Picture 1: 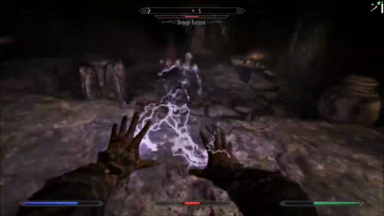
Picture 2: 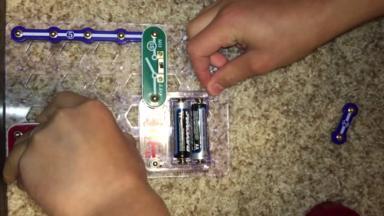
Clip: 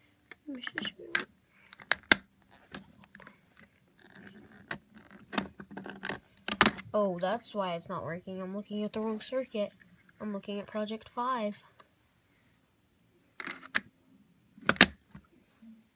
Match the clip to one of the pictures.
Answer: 2